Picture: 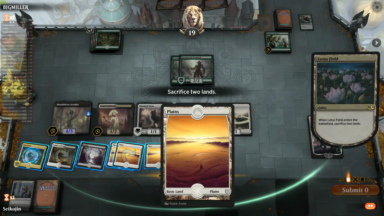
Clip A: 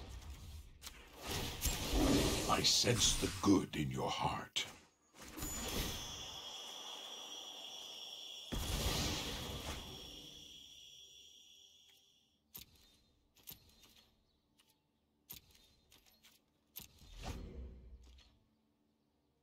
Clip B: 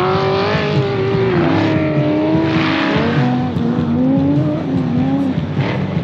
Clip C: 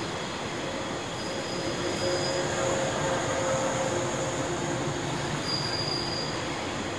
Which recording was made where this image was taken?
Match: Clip A